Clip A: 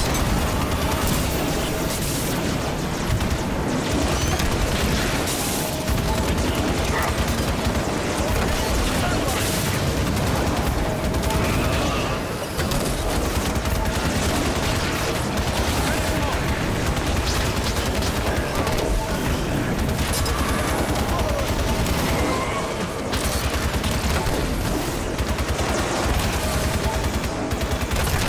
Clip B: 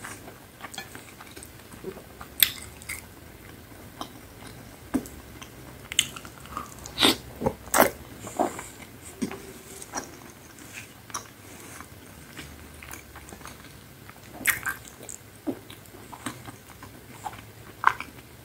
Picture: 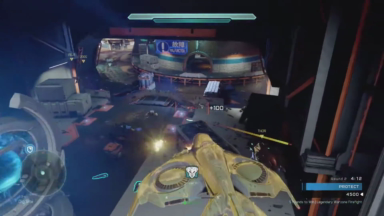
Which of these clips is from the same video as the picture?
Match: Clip A